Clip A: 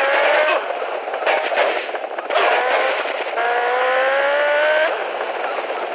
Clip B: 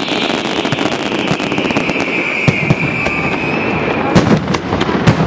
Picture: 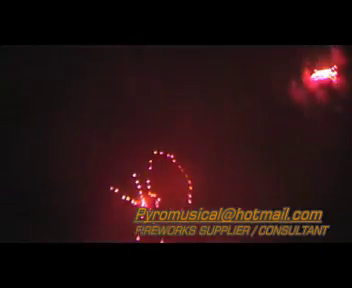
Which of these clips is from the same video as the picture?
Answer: B